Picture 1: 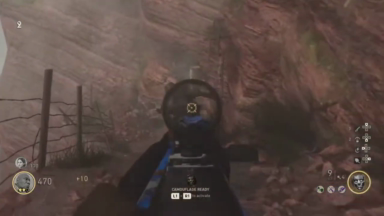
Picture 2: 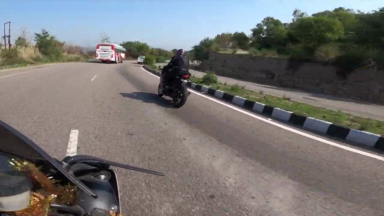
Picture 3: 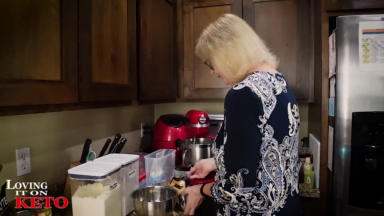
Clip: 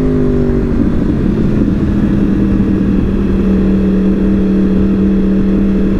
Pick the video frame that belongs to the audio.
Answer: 2